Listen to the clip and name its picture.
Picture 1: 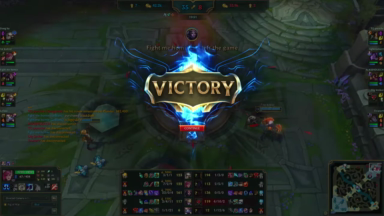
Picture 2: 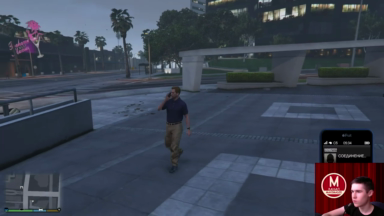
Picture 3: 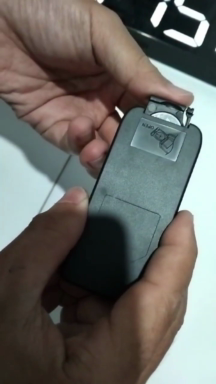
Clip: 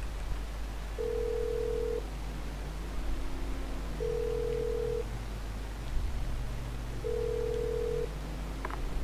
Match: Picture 2